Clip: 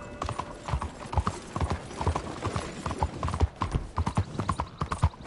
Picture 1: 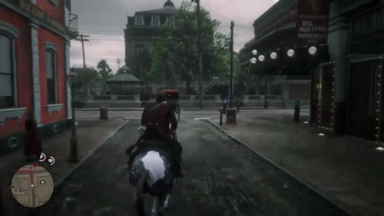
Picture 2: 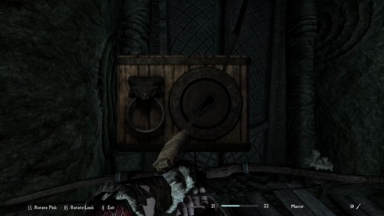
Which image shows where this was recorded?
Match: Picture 1